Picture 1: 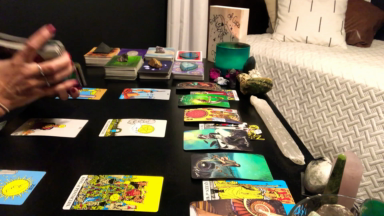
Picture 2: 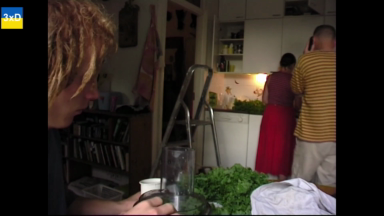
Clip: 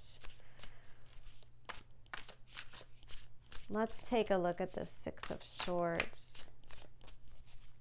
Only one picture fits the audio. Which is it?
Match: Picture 1